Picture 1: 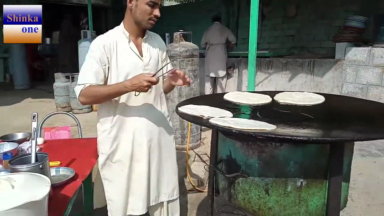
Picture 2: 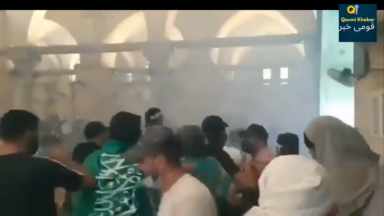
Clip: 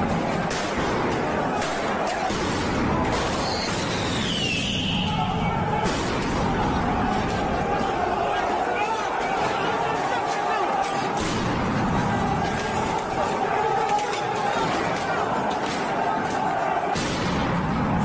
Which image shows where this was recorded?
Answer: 2